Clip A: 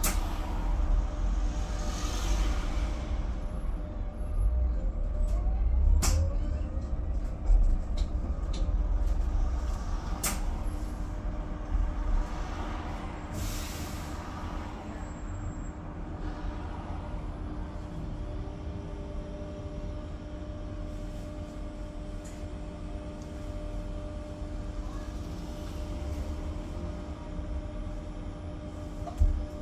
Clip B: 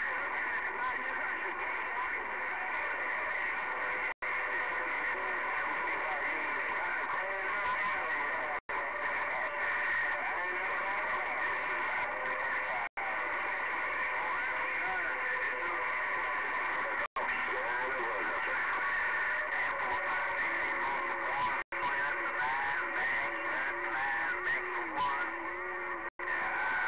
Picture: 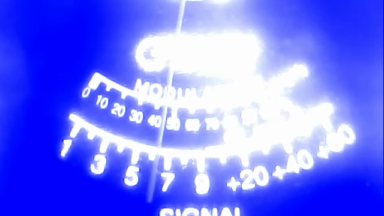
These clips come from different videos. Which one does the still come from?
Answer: B